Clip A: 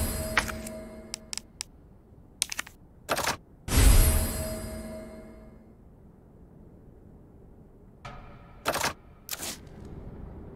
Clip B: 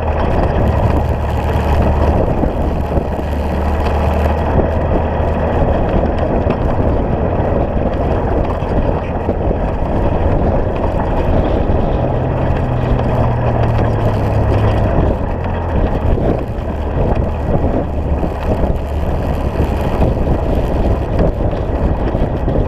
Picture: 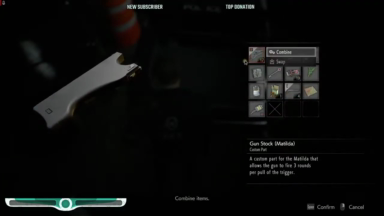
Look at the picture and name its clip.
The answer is A